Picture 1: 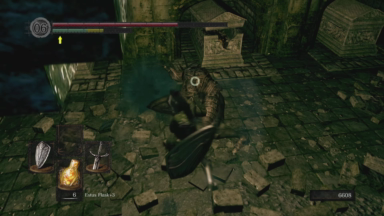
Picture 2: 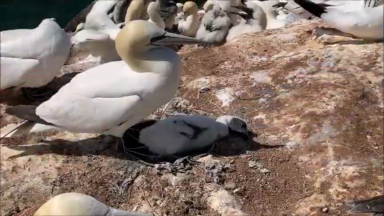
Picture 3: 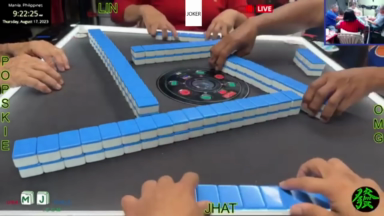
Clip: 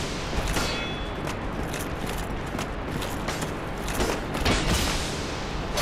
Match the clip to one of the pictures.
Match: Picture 1